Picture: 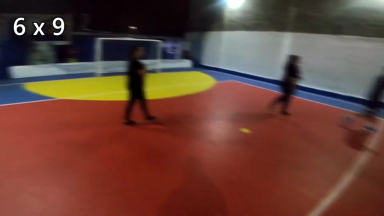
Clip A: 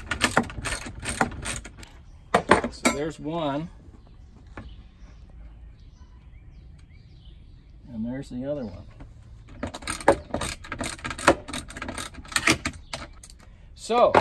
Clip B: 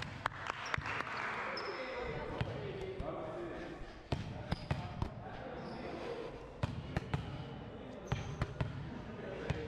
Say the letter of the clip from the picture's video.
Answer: B